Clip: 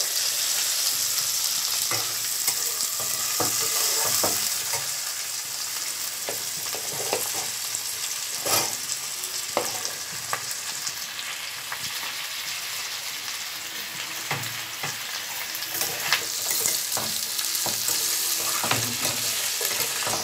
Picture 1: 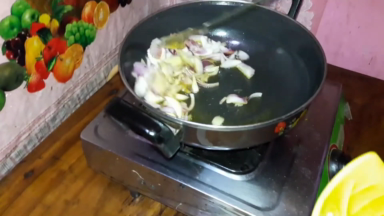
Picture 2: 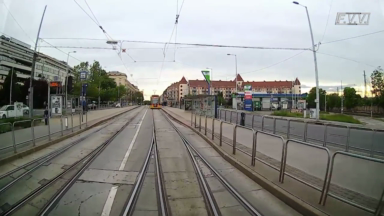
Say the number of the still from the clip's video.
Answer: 1